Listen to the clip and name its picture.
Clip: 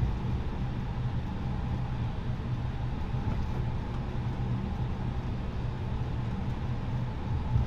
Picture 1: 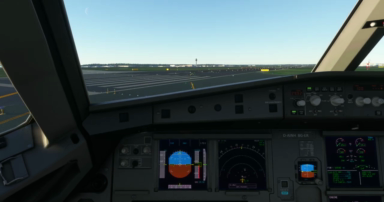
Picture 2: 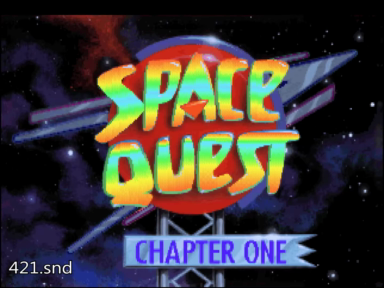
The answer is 1